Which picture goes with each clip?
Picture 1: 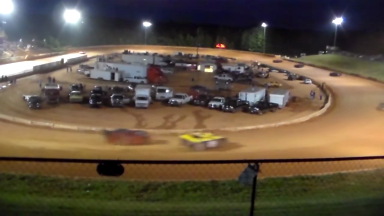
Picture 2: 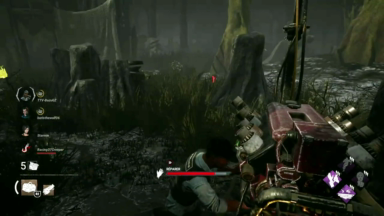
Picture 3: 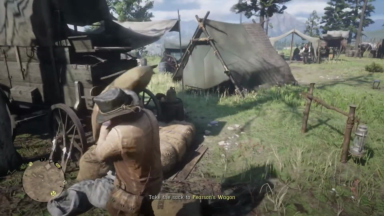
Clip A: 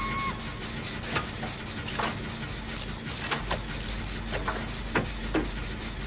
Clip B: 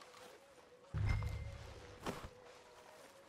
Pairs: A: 2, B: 3